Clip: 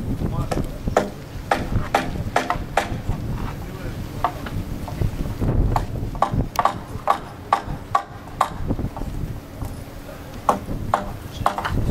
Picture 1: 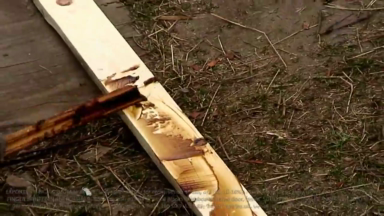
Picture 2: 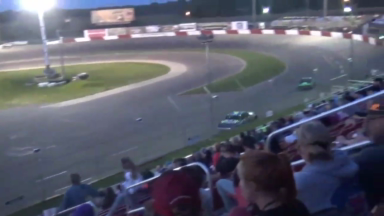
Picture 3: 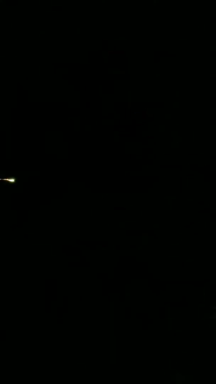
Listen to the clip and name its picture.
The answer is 1